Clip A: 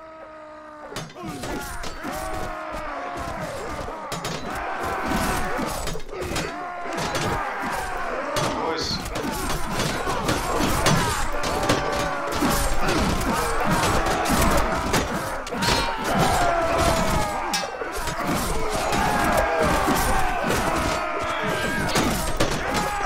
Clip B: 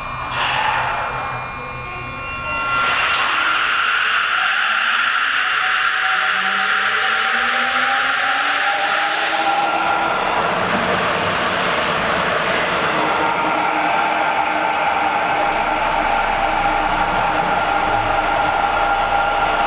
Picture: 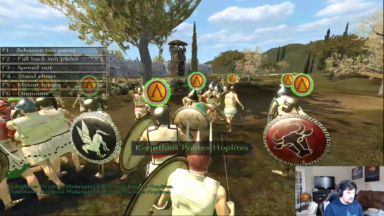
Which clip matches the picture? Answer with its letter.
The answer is A